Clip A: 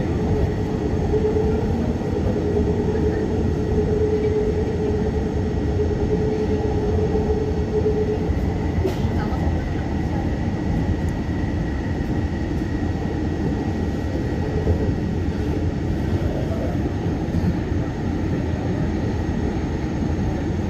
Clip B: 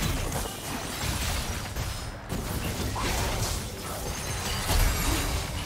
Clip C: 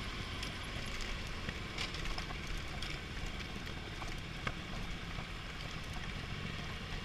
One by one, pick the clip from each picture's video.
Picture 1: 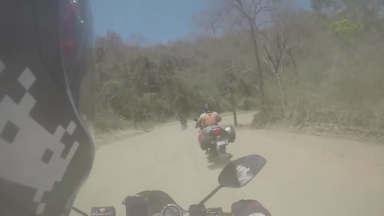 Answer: C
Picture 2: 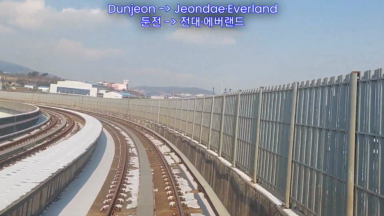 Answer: A